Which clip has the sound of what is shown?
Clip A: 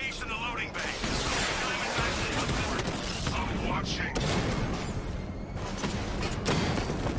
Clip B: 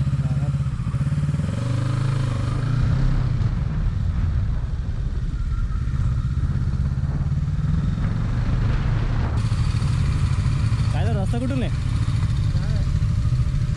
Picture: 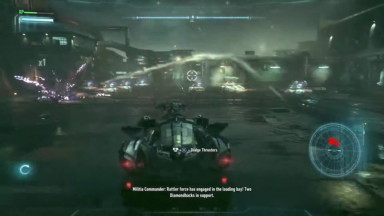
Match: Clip A